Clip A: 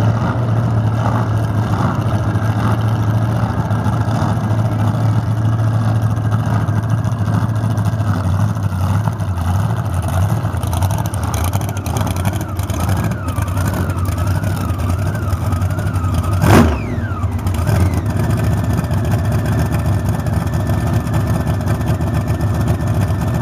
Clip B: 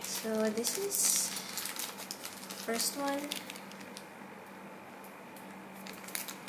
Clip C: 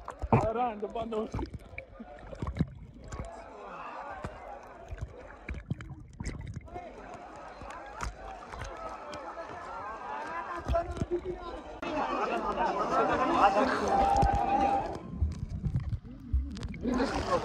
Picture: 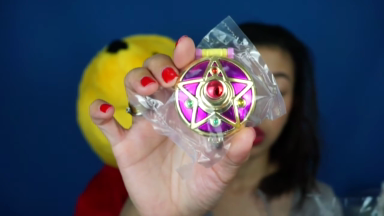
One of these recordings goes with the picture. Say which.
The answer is B